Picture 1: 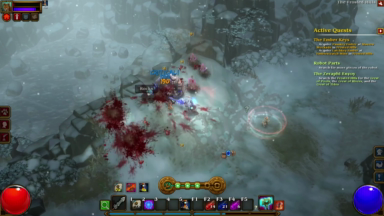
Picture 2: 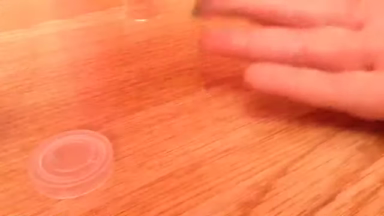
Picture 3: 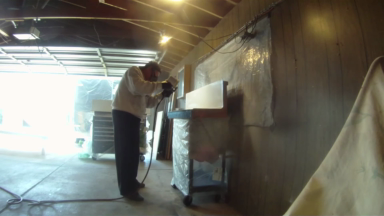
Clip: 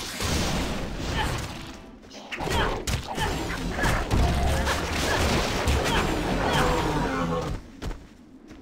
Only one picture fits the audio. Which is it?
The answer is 1